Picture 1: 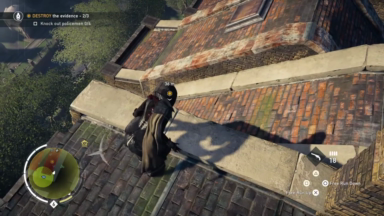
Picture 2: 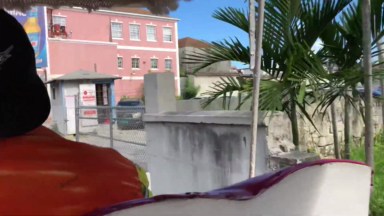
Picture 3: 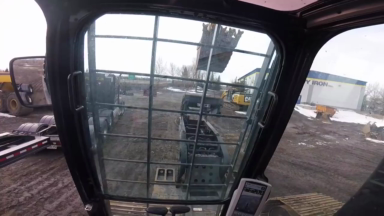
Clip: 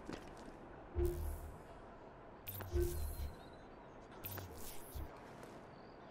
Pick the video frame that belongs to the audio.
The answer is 1